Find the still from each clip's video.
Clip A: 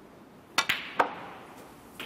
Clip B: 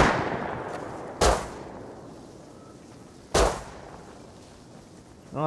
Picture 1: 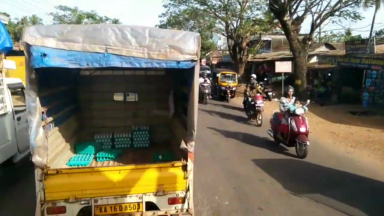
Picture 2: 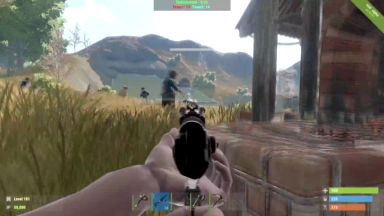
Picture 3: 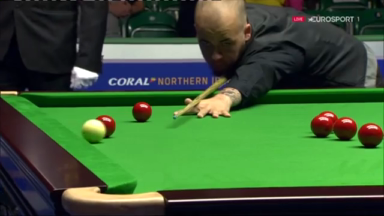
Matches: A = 3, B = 2